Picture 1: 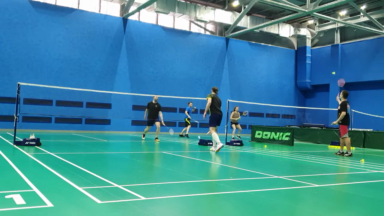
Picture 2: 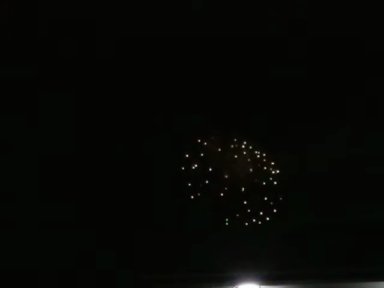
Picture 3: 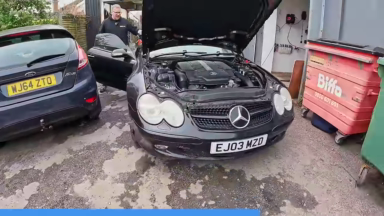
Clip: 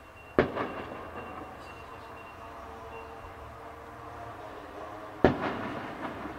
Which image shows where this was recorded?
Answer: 2